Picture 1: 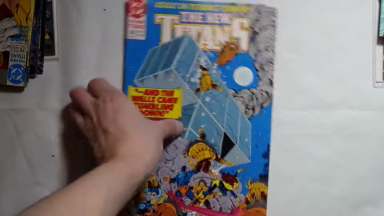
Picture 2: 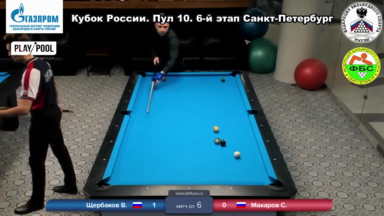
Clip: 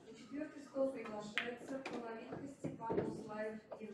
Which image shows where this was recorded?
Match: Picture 2